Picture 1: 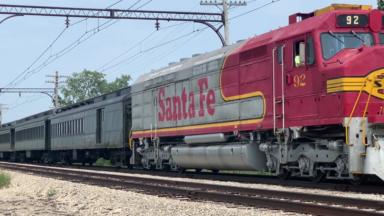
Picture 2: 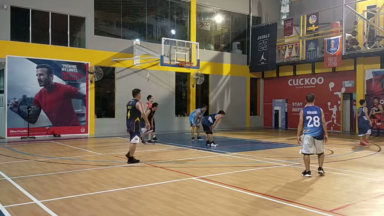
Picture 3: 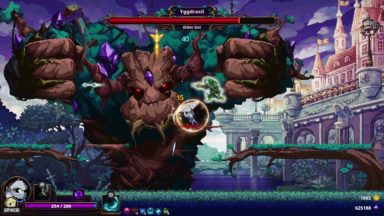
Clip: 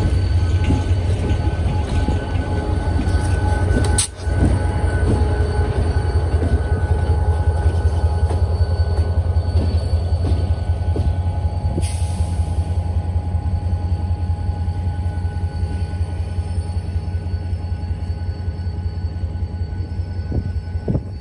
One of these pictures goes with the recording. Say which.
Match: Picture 1